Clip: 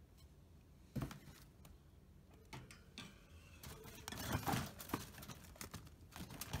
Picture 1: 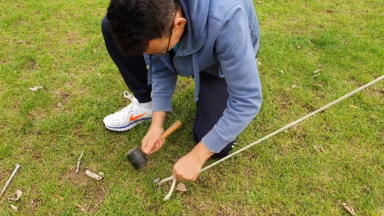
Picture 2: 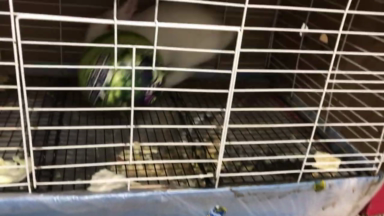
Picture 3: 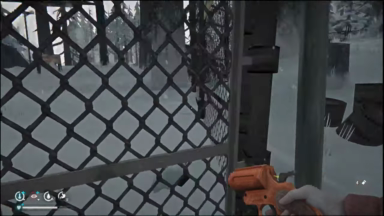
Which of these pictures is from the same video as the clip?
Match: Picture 2